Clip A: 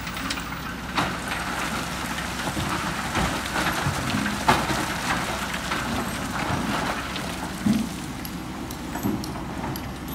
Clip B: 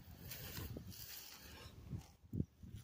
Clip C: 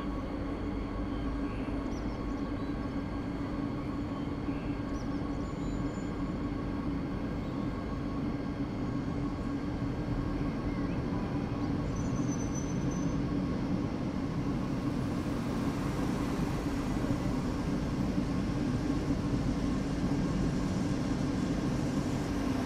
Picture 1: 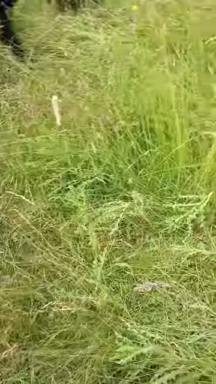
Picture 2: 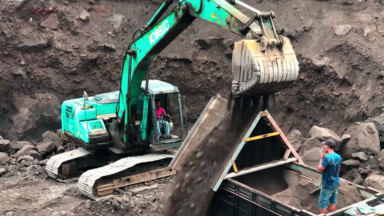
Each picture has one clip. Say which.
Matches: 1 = B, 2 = A